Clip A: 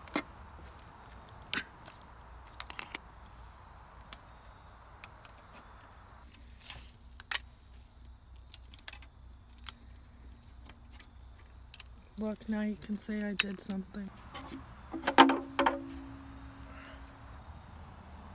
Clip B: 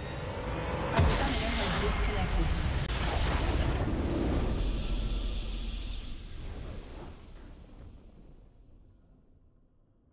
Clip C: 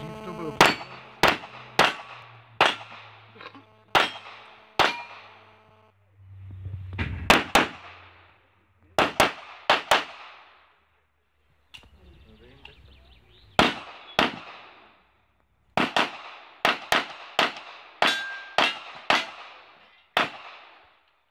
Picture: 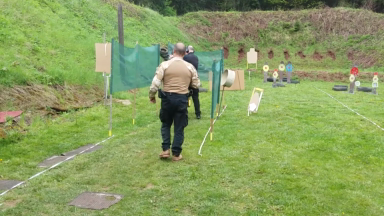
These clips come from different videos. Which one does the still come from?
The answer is C